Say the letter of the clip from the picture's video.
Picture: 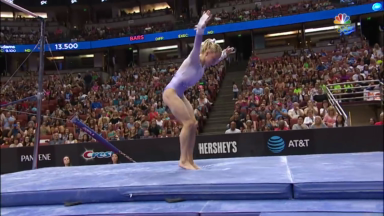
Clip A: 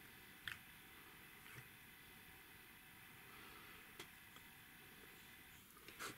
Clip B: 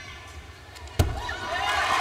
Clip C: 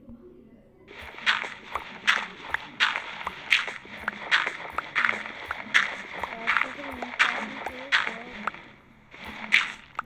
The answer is B